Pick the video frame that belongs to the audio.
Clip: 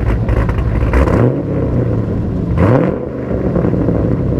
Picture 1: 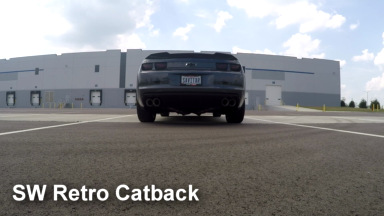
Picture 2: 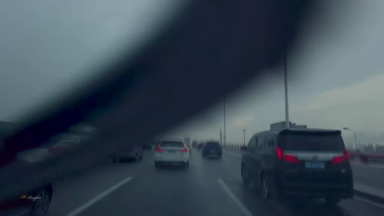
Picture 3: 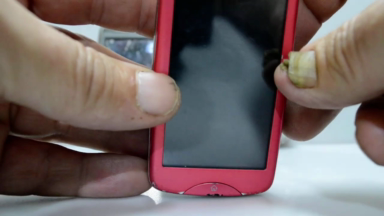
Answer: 1